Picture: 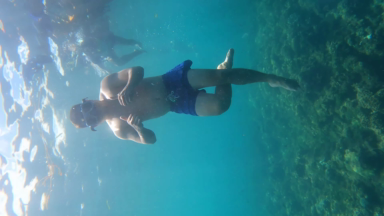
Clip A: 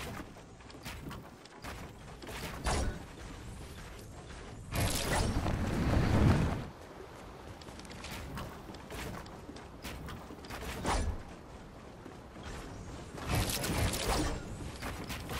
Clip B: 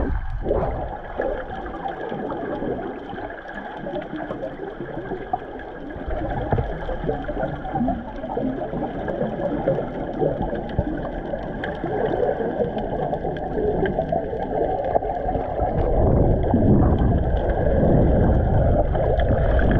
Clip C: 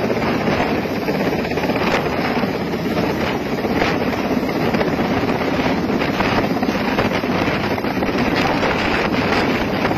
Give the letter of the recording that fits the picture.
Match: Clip B